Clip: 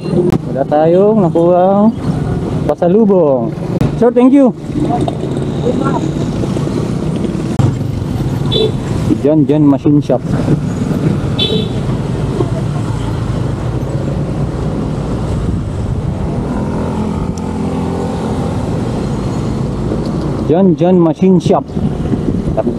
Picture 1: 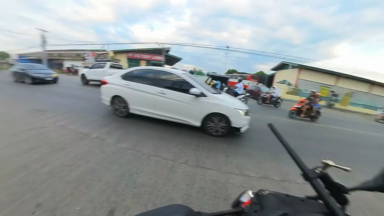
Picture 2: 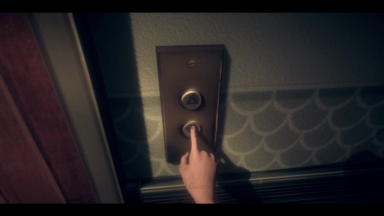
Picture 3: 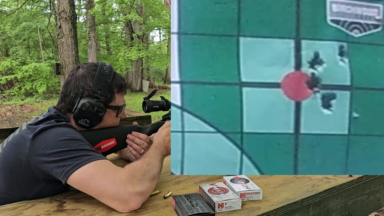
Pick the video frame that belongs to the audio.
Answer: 1